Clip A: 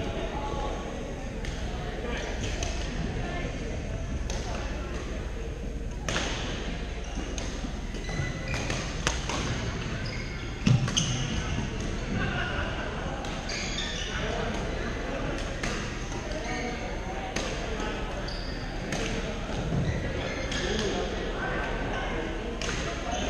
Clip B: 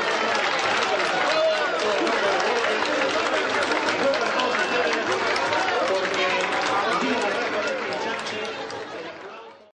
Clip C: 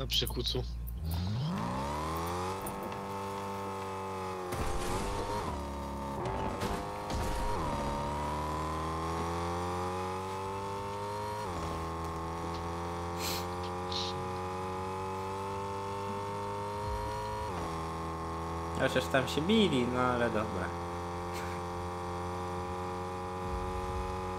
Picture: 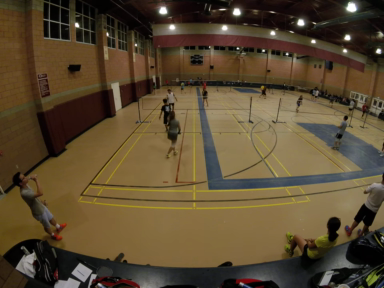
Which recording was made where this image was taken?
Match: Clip A